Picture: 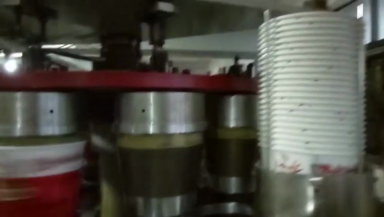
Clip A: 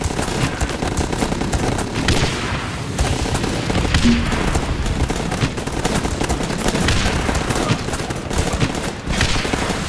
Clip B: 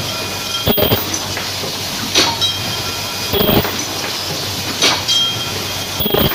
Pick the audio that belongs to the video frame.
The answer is B